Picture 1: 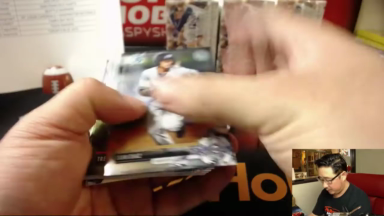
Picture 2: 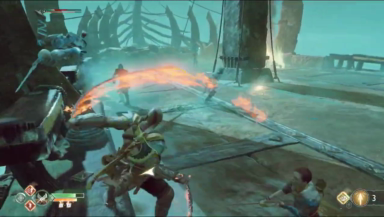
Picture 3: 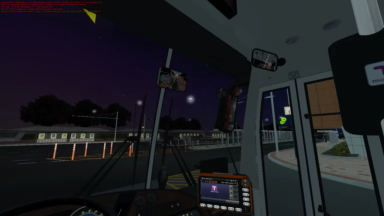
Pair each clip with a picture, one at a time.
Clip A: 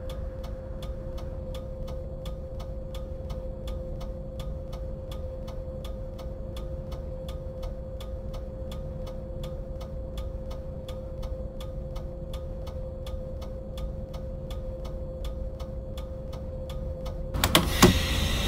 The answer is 3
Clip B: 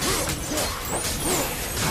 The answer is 2